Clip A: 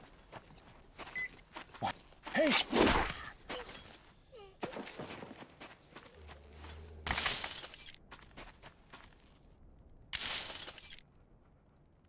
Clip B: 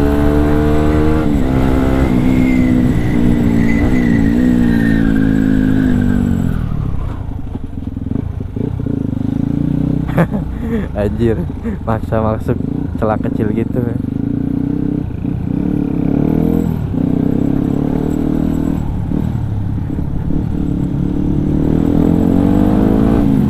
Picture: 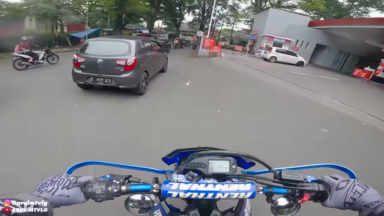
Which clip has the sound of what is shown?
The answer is B